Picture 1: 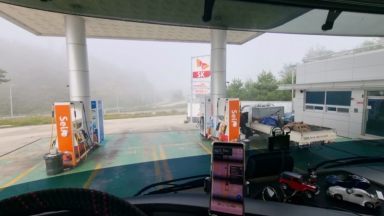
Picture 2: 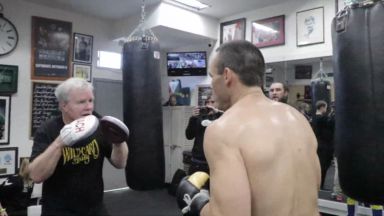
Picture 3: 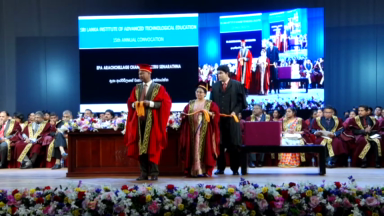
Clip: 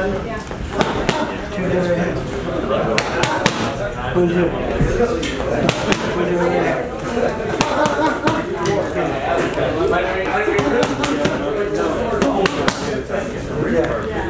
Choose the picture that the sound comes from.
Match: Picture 2